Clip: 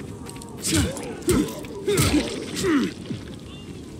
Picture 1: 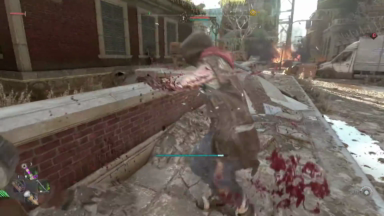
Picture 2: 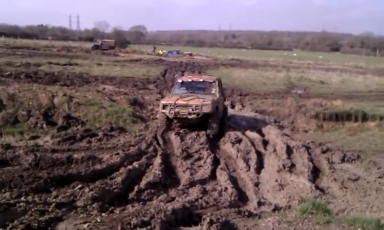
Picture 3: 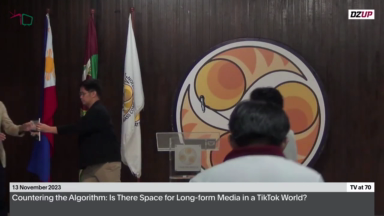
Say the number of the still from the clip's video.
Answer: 1